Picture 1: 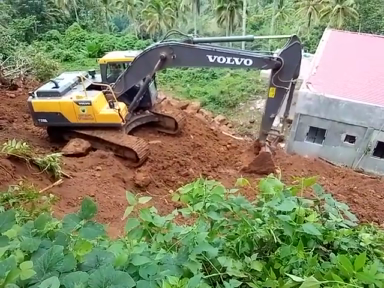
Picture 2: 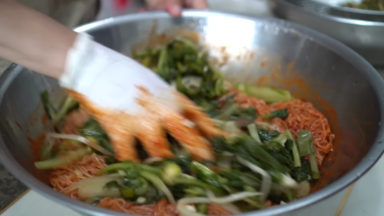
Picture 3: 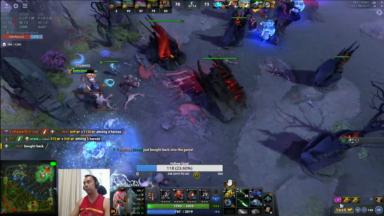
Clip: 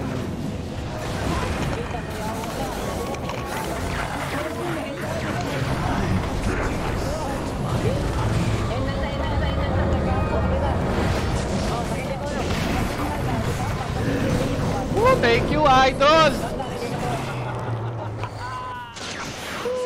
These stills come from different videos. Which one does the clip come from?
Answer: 3